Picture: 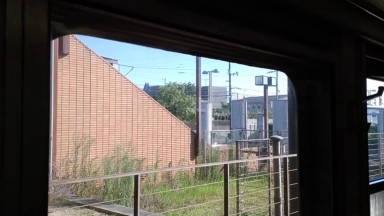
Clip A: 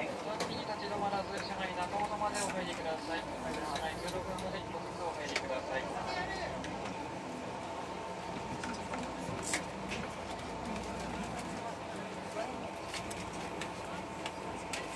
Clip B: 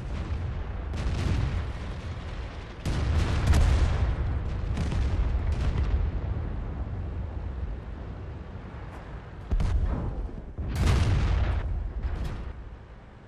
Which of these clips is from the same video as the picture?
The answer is A